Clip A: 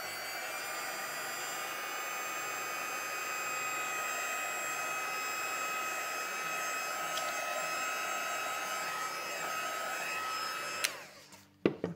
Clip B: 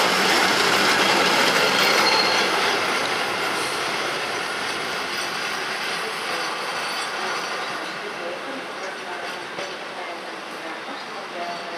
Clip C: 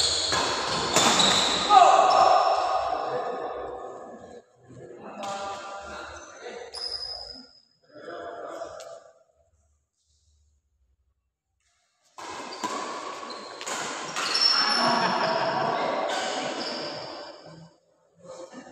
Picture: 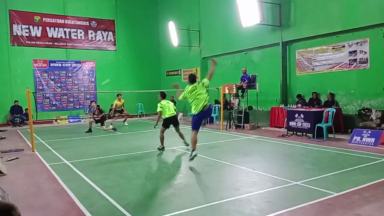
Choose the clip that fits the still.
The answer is C